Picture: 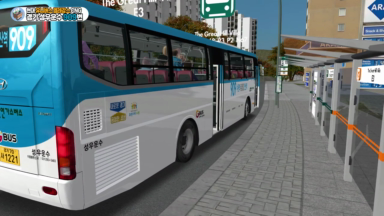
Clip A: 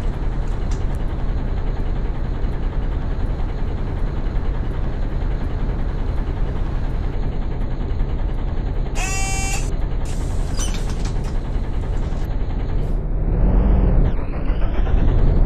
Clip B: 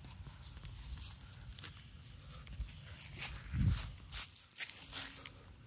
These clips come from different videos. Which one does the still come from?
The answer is A